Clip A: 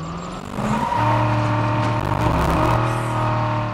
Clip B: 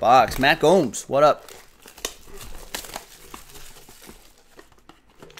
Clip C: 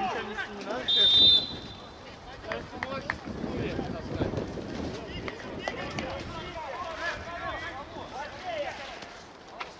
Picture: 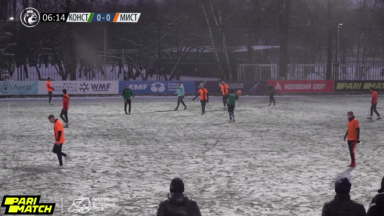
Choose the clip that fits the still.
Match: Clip C